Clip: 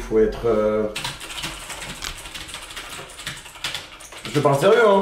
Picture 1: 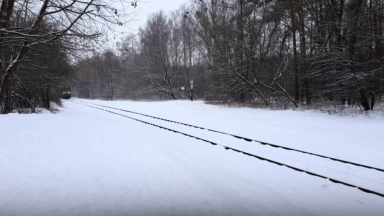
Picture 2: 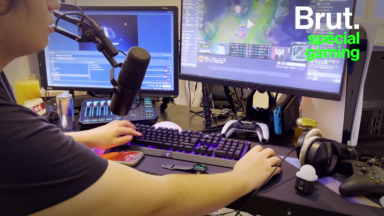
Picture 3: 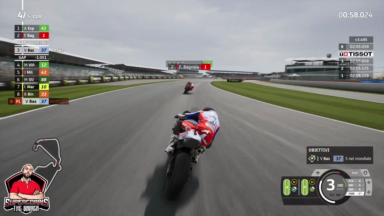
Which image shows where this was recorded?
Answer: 2